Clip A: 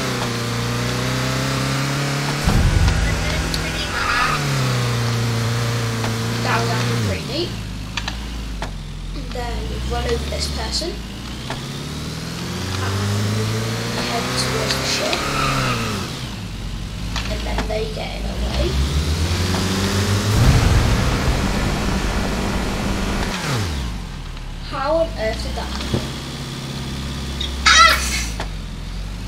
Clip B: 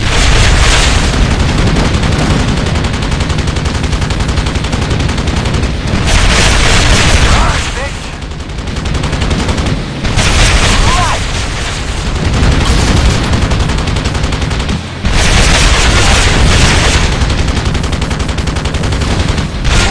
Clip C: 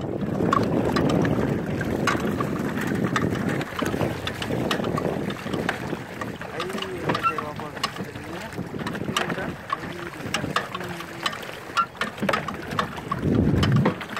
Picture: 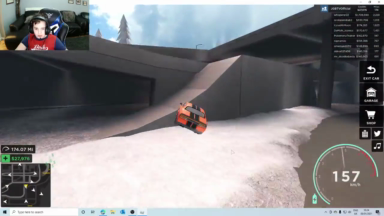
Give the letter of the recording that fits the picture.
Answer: A